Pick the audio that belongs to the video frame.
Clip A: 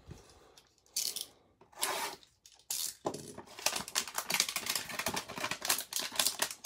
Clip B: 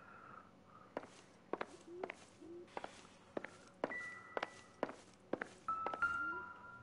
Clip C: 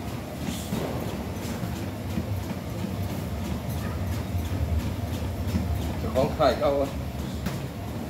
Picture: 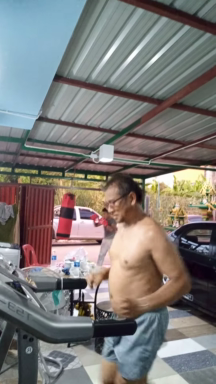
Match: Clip C